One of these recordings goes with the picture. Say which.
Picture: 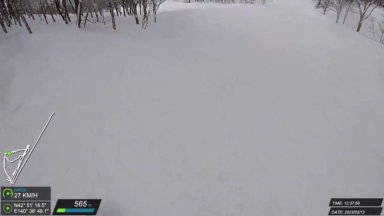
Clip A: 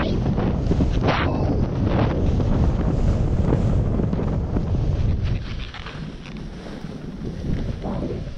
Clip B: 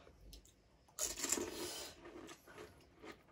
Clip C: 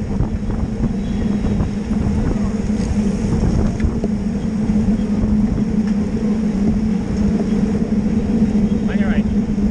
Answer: A